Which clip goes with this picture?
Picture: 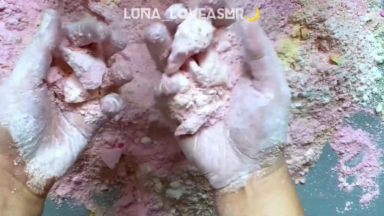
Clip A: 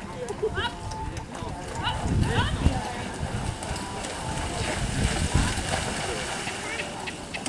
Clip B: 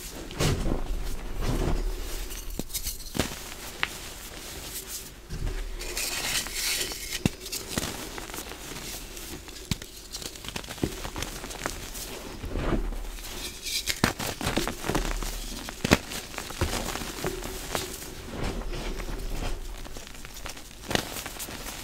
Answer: B